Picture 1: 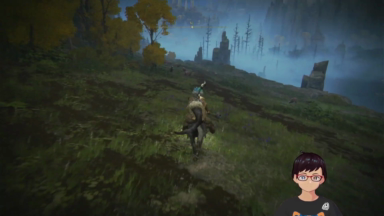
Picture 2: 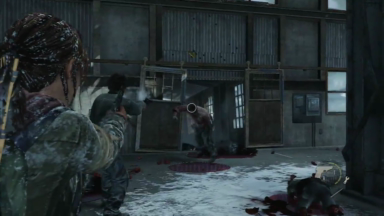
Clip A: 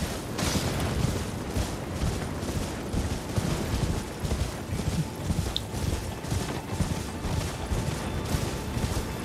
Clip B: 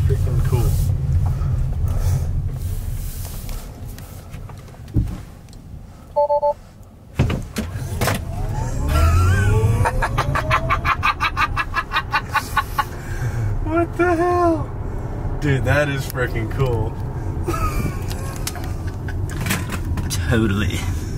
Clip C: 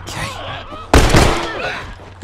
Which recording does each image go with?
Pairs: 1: A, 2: C